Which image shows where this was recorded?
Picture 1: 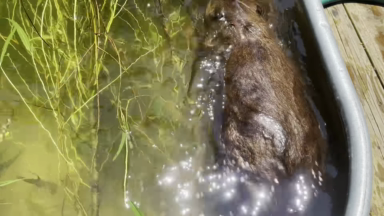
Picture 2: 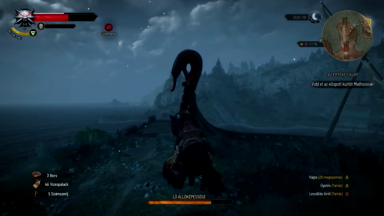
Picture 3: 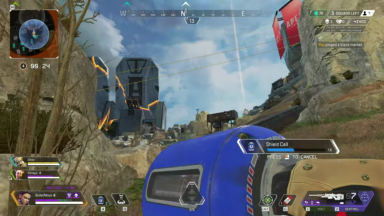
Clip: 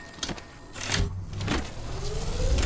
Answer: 3